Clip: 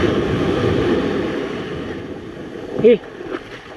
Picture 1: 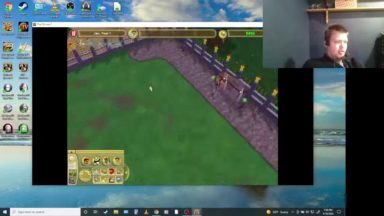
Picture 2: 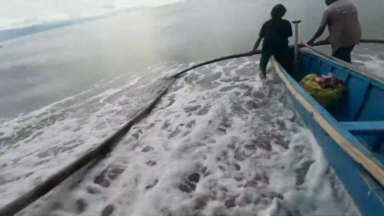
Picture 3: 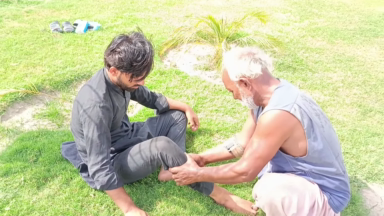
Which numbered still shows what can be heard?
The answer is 2